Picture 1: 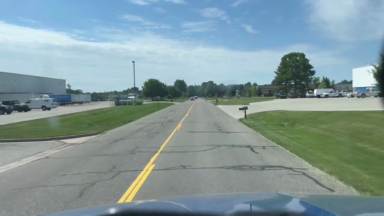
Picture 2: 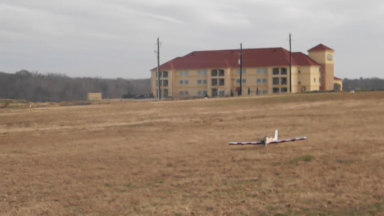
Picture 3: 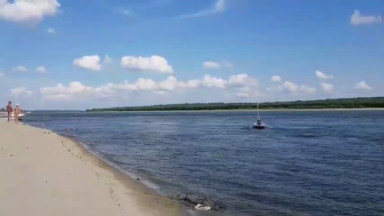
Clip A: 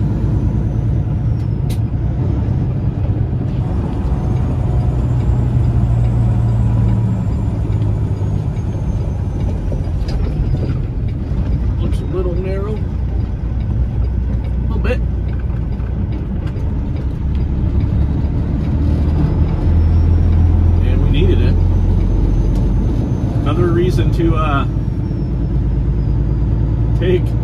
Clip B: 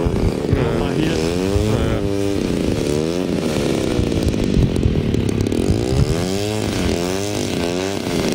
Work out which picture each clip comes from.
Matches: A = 1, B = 2